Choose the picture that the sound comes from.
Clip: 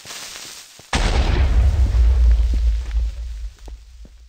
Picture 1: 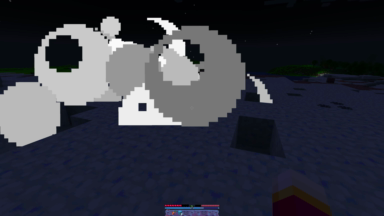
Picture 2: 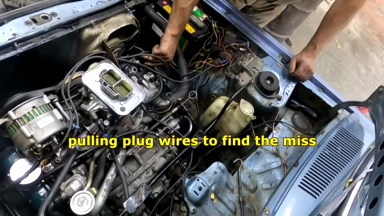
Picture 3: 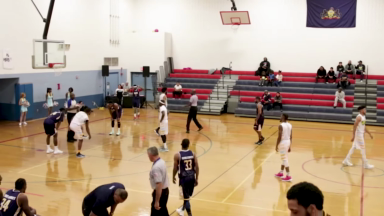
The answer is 1